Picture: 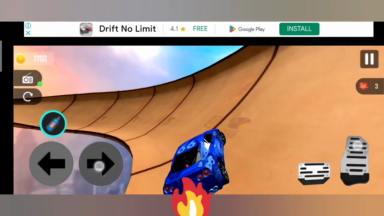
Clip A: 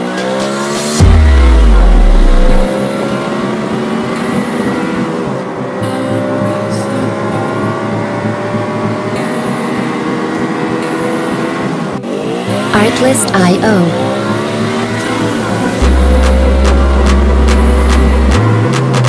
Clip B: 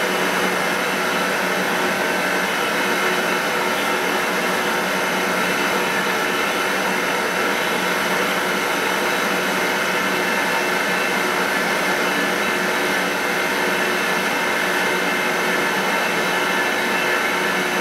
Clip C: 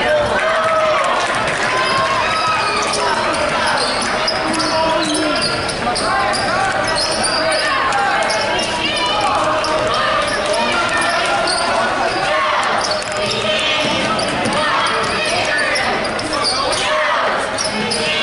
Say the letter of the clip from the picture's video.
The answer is A